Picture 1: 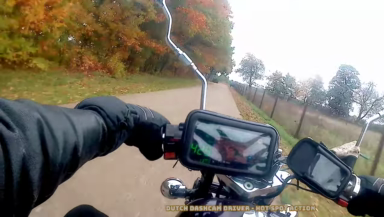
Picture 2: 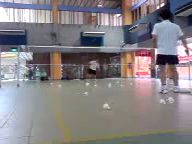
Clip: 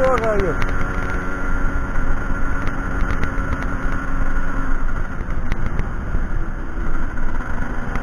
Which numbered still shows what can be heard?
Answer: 1